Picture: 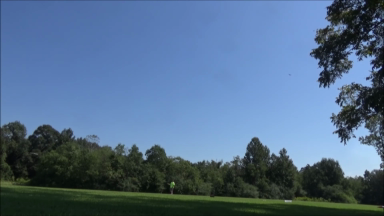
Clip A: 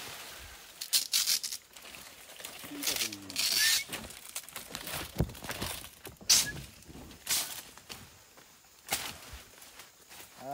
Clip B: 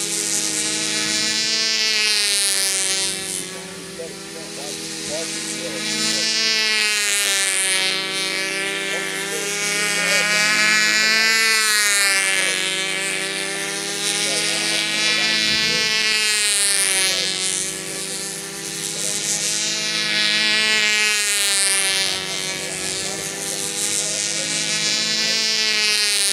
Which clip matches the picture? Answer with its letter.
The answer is B